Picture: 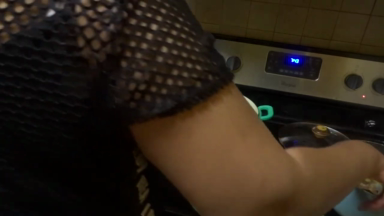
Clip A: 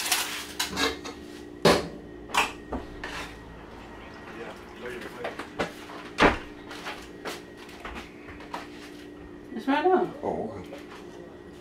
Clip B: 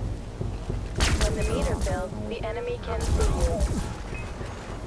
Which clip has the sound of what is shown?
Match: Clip A